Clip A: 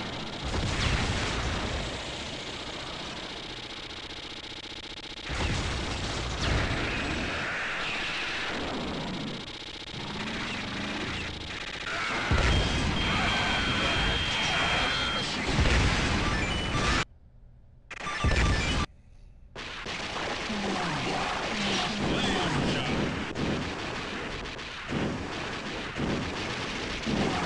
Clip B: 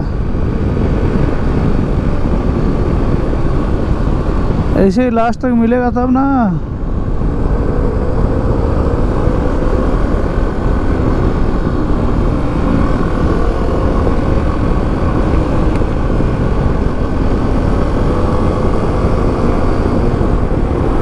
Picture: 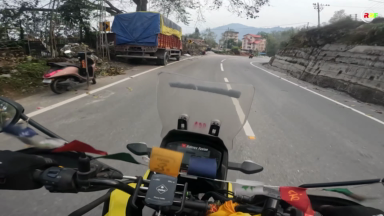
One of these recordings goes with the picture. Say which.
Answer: B